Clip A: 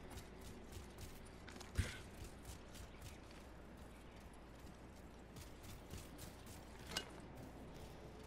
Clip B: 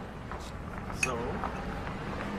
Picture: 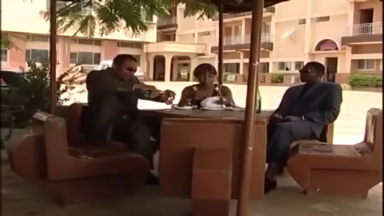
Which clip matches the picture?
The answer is B